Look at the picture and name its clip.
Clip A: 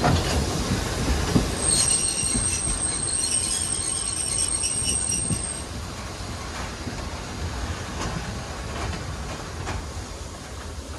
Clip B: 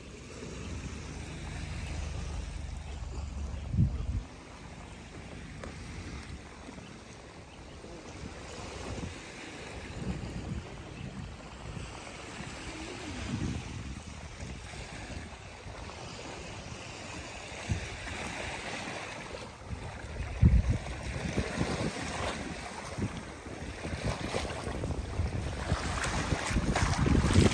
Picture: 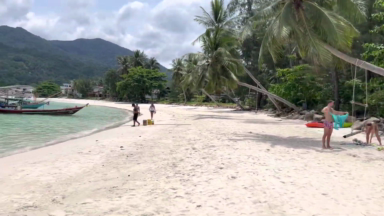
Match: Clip B